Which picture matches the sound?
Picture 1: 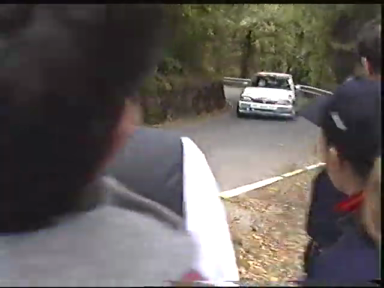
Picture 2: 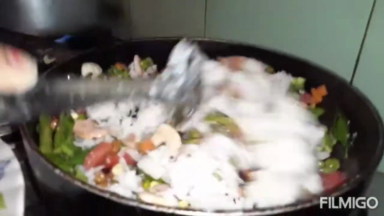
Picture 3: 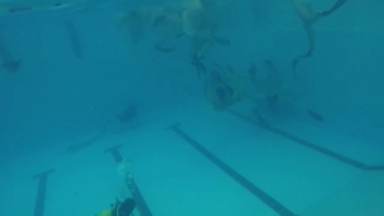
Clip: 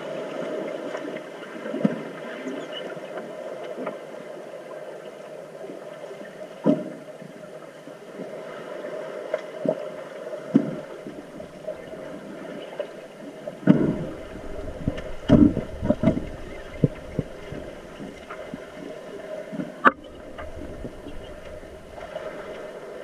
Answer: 3